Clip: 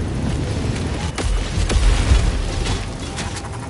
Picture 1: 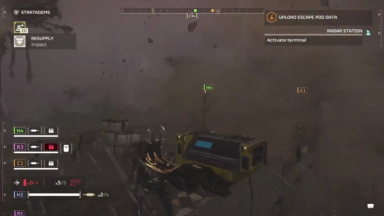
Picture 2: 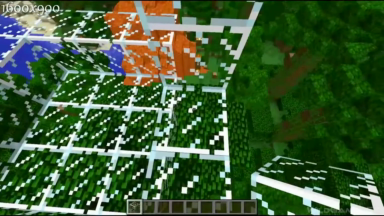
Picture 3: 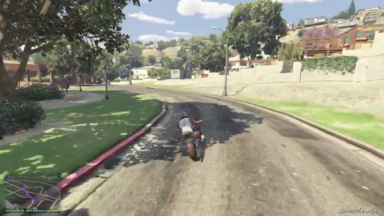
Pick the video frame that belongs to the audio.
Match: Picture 1